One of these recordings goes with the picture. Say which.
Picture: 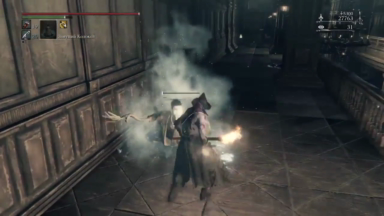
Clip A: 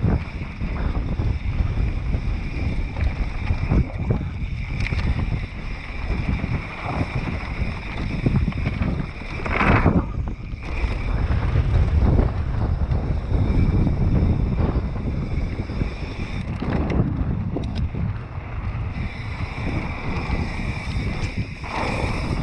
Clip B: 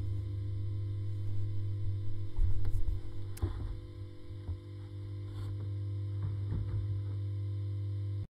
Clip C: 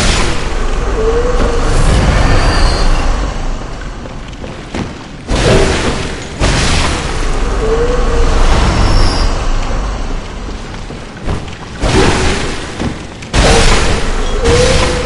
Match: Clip C